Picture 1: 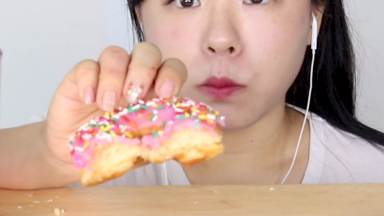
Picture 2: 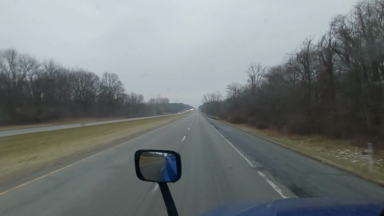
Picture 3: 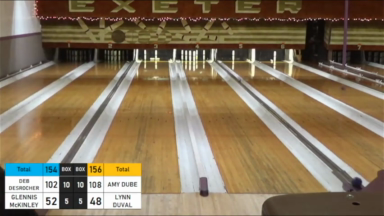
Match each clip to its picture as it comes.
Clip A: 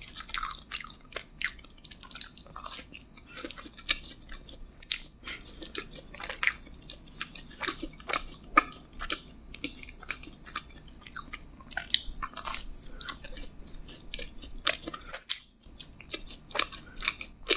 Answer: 1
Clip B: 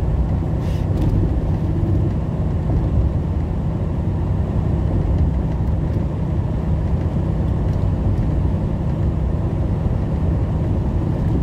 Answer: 2